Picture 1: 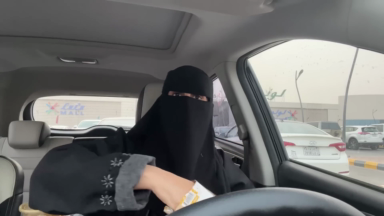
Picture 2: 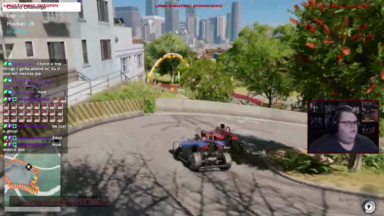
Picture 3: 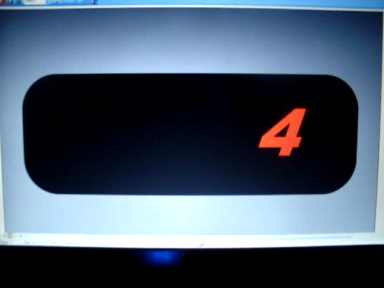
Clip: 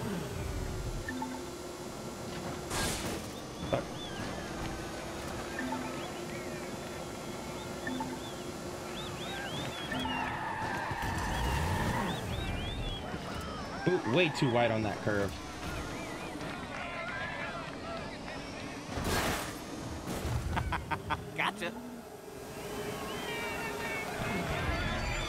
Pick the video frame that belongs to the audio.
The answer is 2